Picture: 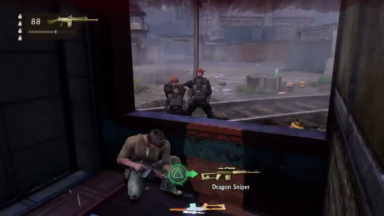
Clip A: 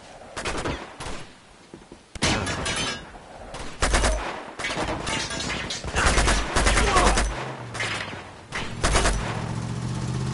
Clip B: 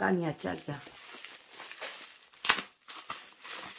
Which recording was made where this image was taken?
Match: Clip A